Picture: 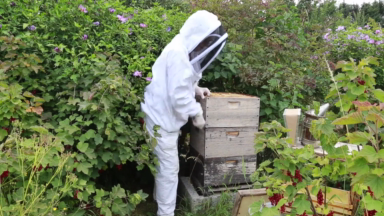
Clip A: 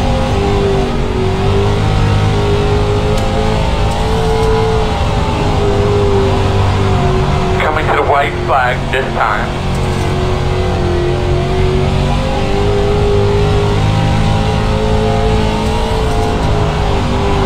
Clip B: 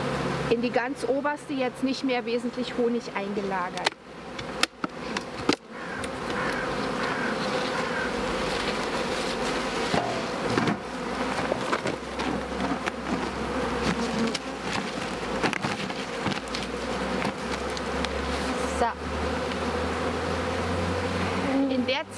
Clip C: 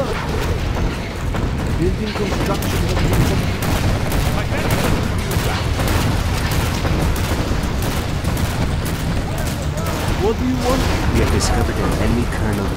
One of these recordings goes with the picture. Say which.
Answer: B